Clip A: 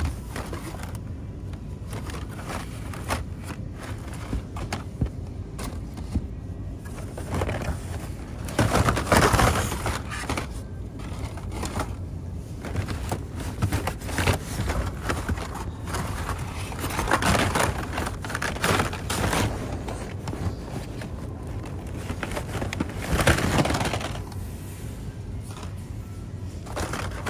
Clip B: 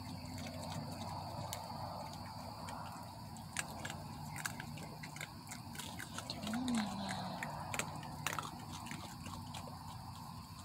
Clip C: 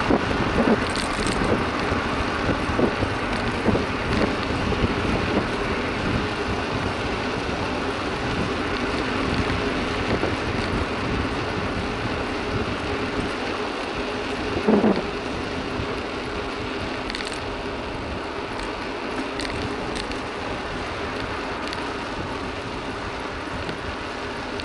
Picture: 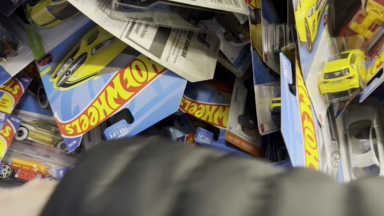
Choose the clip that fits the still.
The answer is A